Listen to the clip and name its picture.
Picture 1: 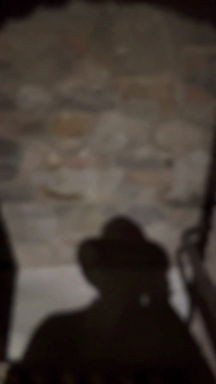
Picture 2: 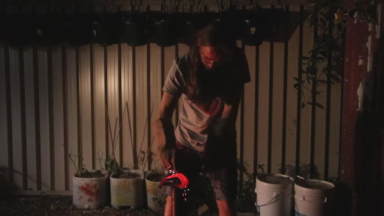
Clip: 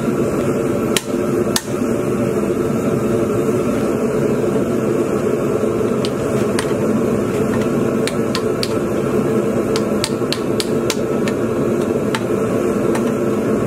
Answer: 2